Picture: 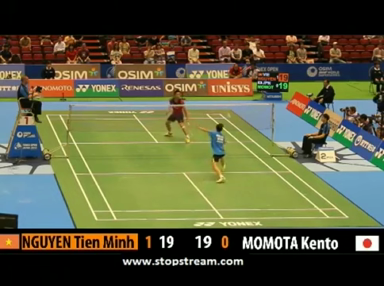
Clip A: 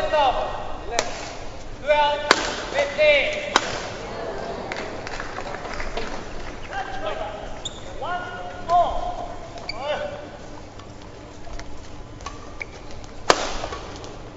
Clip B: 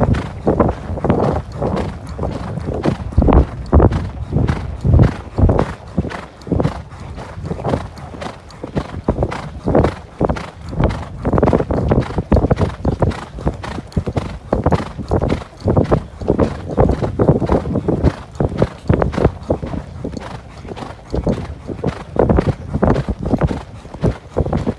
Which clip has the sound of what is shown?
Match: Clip A